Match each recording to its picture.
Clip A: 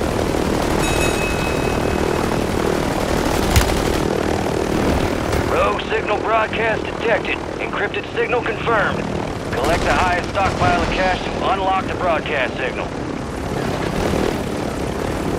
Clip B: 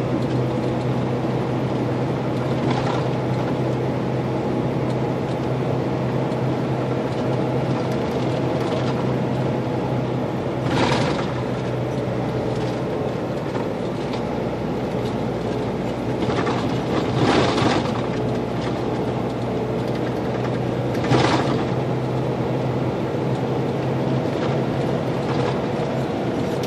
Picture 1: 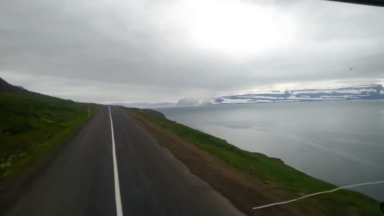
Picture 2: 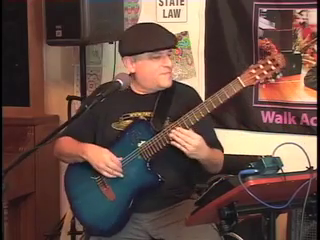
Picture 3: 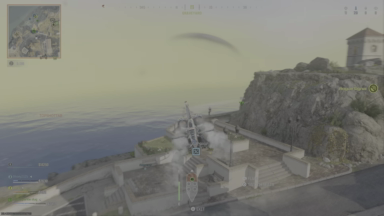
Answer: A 3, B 1